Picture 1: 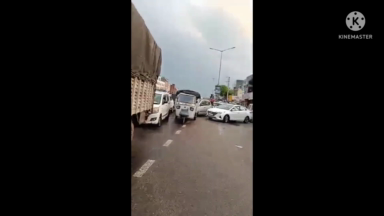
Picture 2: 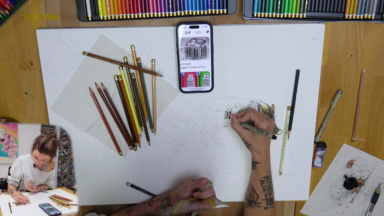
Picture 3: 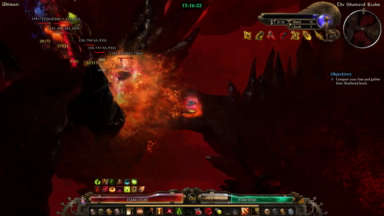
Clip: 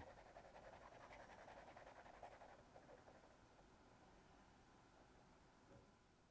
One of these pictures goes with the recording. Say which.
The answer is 2